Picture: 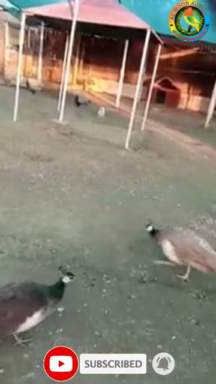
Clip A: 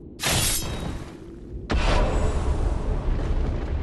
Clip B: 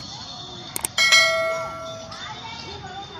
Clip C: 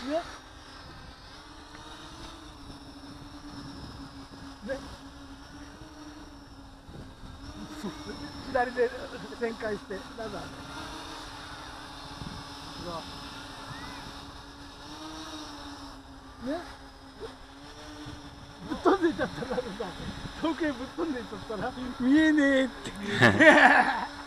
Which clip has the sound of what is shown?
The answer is B